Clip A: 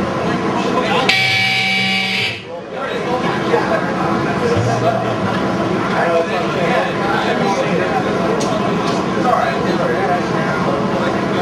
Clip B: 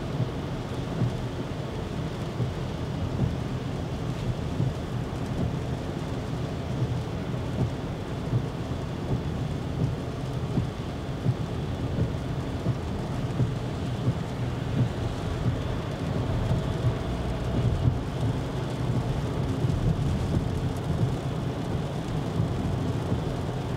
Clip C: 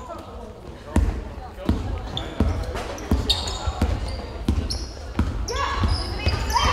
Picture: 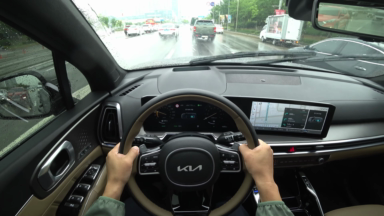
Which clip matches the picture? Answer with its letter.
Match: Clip B